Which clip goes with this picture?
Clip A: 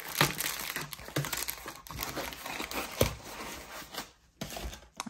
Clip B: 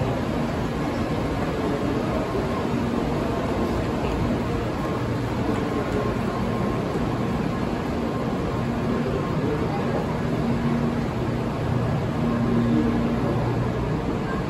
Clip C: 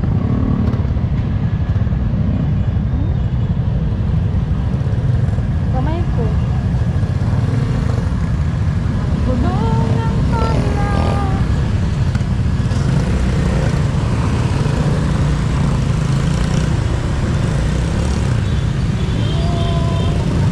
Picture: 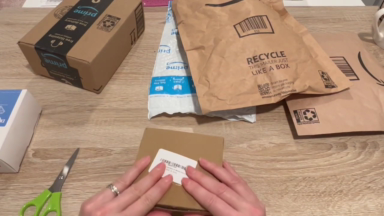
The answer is A